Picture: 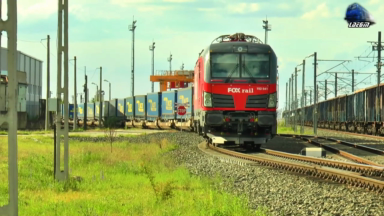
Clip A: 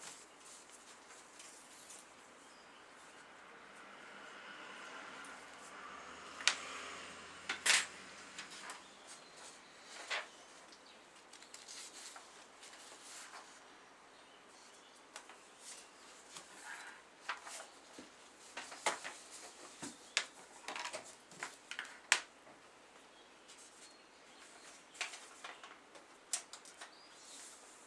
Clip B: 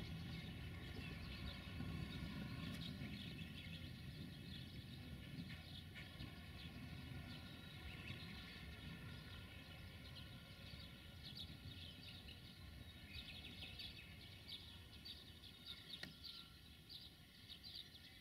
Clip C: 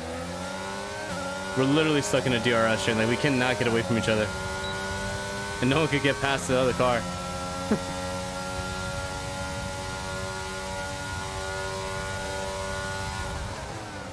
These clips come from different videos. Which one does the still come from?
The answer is B